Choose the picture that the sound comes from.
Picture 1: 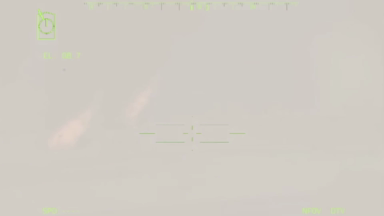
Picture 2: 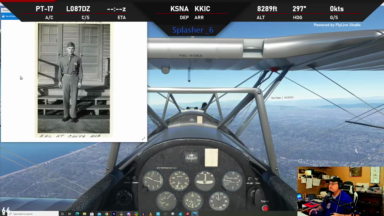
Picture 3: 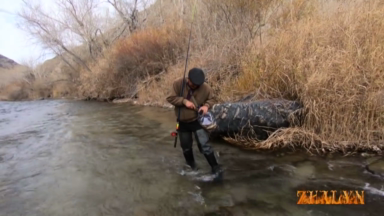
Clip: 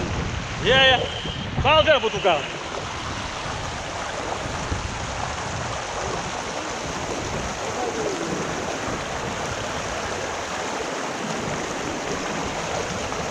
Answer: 3